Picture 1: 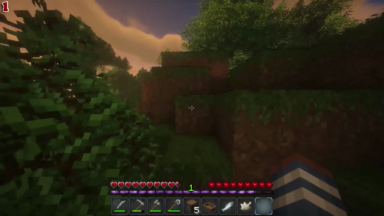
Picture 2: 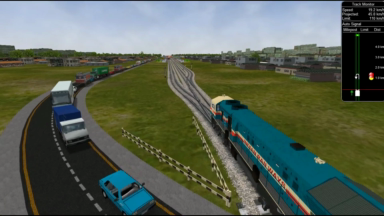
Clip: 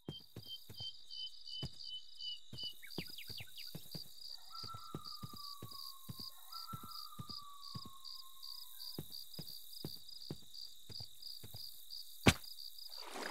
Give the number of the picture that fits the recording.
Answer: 1